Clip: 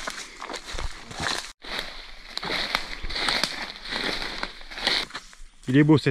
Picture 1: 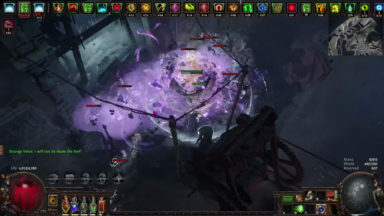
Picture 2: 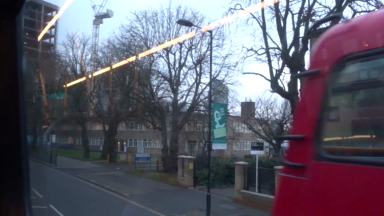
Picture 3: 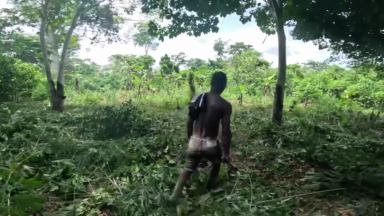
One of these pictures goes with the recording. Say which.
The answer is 3